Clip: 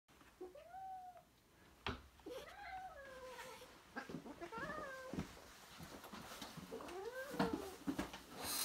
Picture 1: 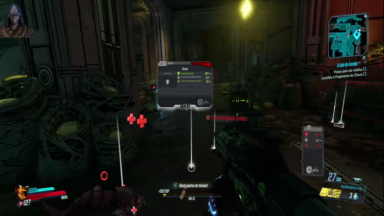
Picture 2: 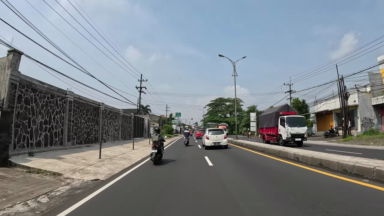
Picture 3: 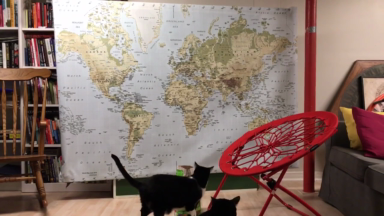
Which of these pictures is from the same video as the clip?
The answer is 3